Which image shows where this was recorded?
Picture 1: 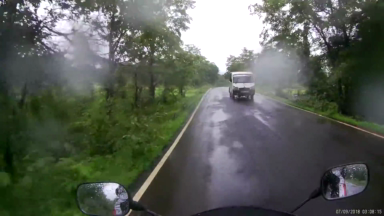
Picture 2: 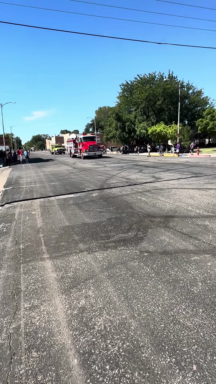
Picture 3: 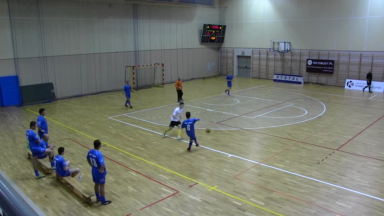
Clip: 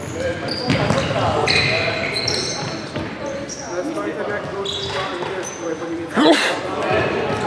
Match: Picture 3